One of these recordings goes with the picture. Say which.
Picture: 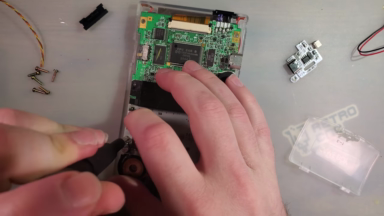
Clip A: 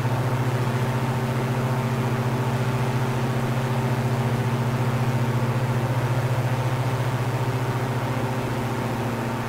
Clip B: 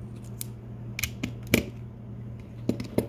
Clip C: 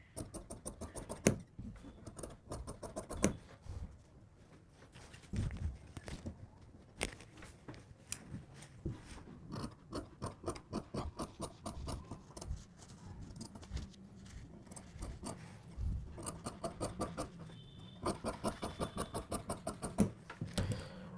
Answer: B